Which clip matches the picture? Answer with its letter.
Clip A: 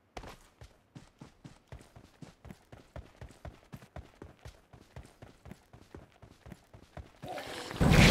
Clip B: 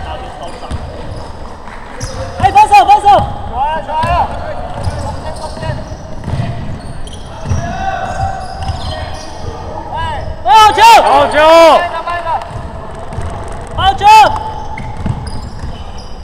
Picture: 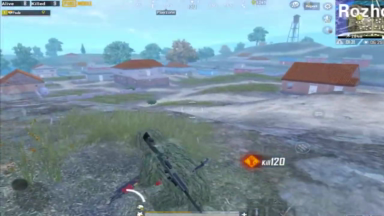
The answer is A